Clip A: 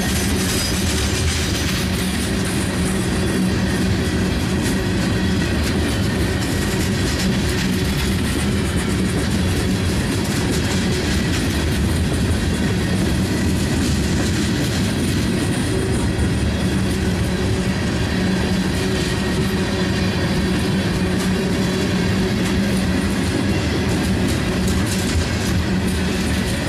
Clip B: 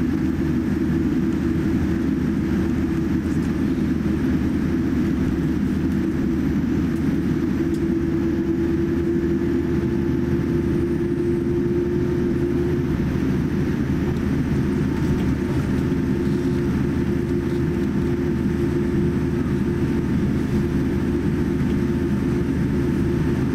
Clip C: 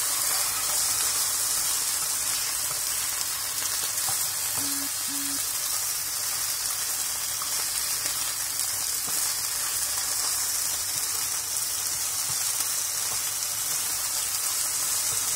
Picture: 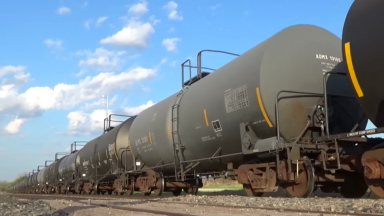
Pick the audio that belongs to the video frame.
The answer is A